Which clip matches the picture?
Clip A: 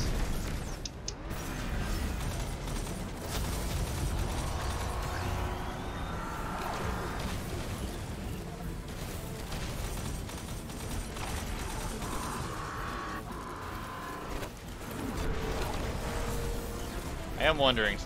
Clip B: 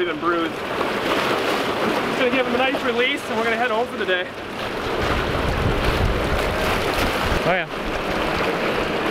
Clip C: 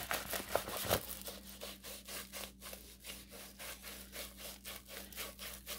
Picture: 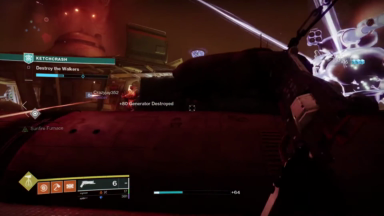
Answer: A